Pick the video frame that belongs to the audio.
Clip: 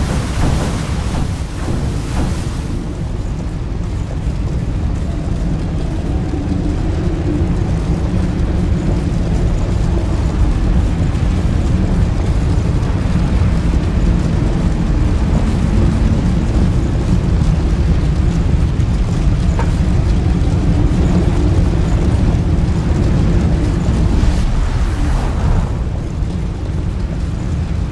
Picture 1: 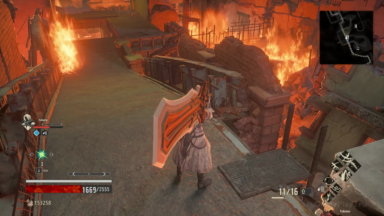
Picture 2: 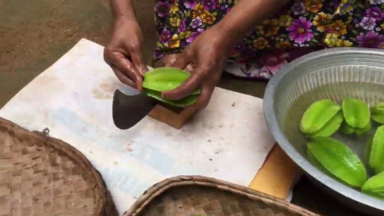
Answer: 1